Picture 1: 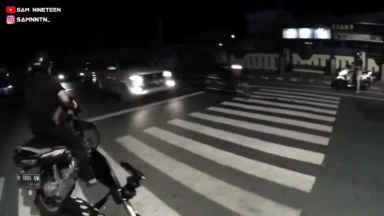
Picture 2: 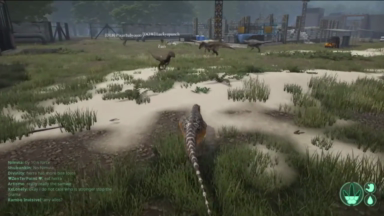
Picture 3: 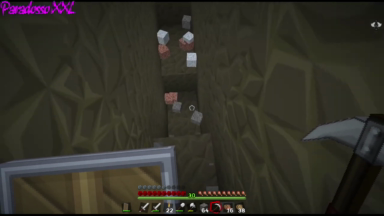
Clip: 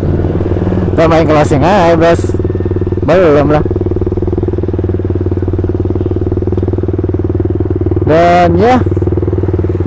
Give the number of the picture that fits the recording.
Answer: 1